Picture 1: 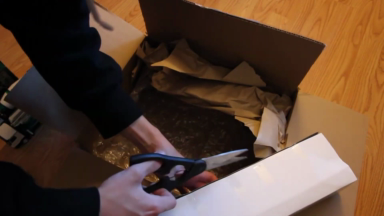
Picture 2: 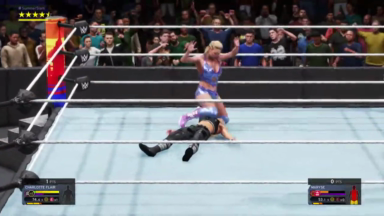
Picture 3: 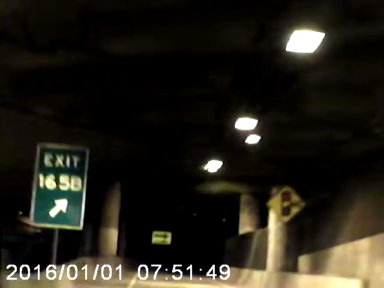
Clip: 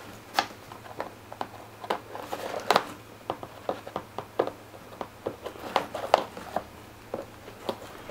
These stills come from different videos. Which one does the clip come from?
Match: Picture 1